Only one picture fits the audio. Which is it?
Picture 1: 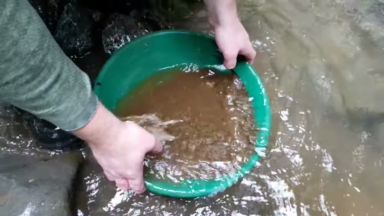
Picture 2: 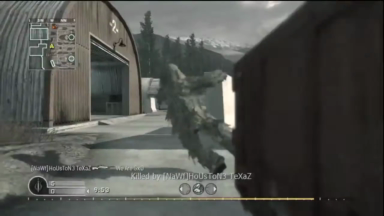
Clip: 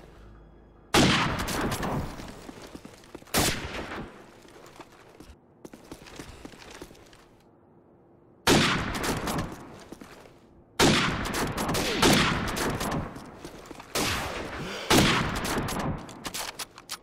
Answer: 2